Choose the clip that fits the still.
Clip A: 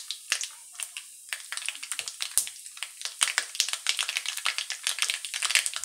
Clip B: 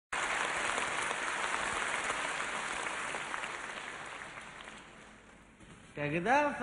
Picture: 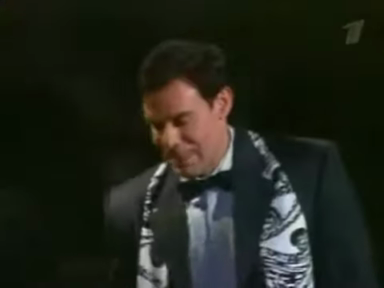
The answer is B